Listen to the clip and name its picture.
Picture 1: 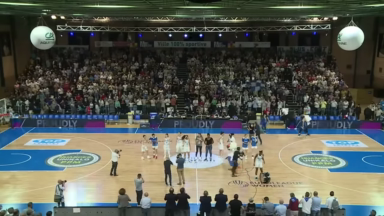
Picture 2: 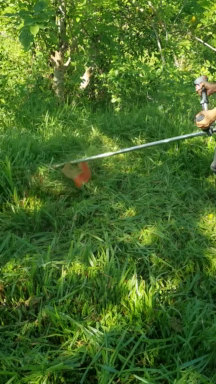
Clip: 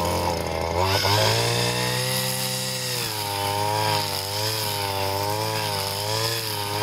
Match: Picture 2